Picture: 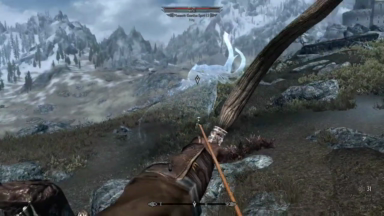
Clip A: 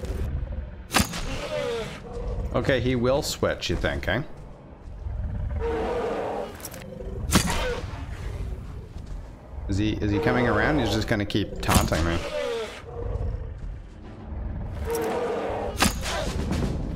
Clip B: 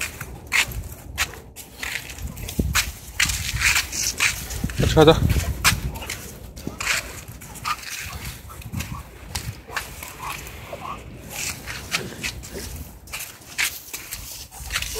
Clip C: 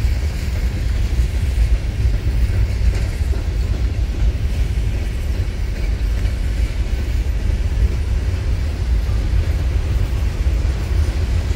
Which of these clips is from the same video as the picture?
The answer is A